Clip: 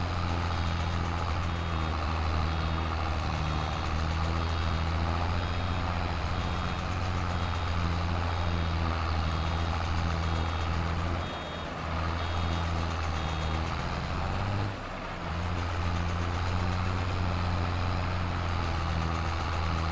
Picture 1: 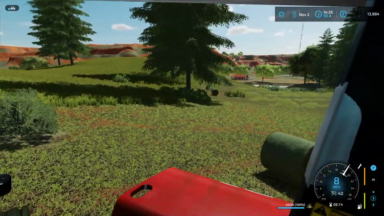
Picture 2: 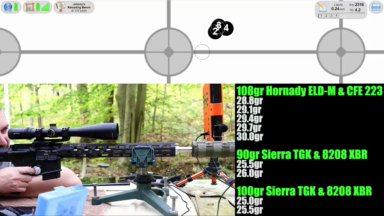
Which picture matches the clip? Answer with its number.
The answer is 1